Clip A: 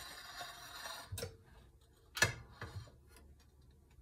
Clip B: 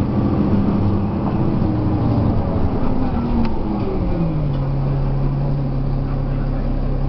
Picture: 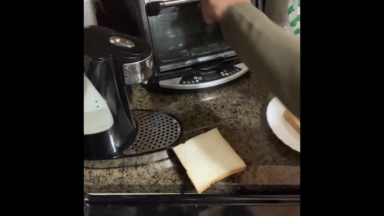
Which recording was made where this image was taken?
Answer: A